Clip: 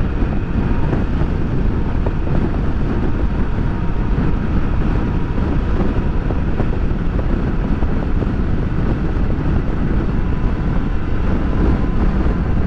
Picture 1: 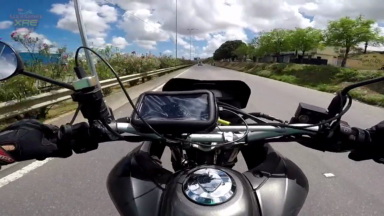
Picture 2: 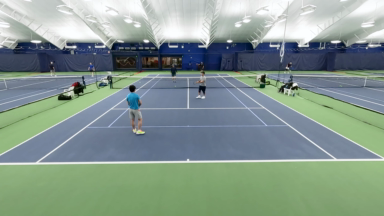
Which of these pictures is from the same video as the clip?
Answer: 1